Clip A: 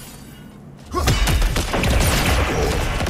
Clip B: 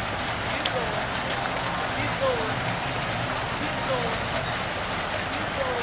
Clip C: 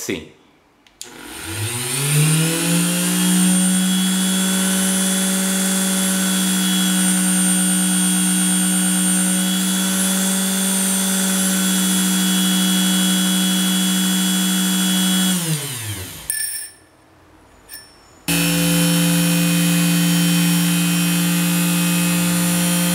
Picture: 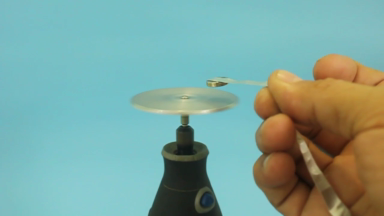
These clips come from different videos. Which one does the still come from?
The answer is C